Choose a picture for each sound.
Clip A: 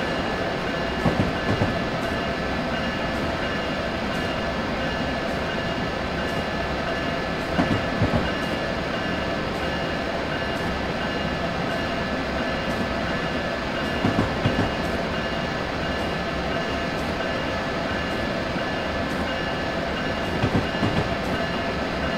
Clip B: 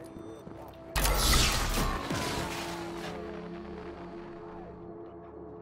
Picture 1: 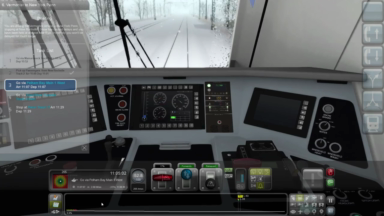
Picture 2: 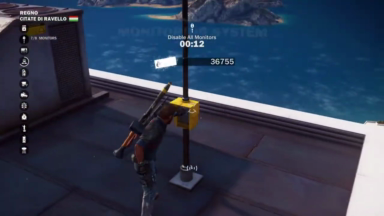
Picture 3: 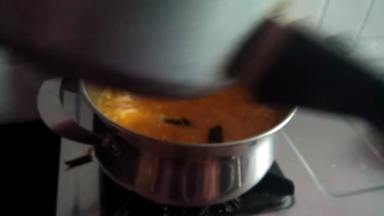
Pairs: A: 1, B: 2